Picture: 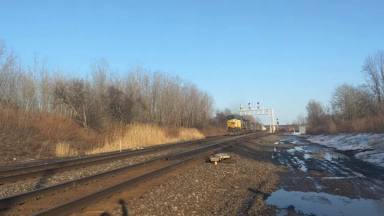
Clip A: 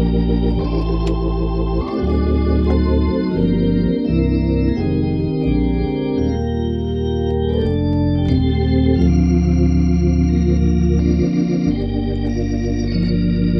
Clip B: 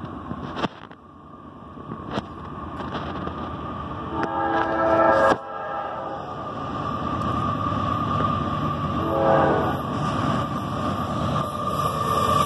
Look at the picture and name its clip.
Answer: B